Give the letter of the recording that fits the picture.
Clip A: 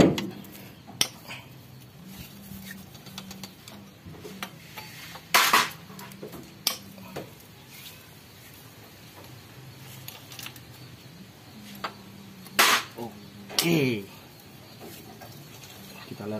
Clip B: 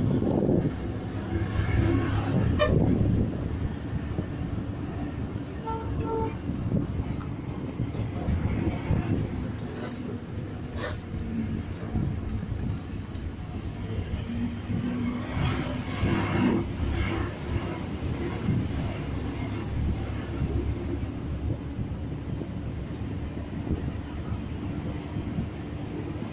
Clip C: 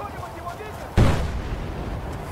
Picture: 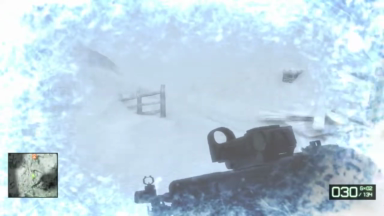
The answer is C